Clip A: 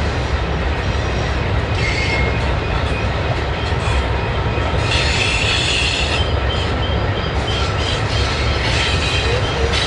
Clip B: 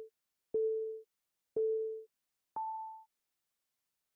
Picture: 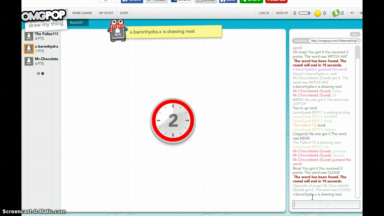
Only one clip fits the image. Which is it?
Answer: B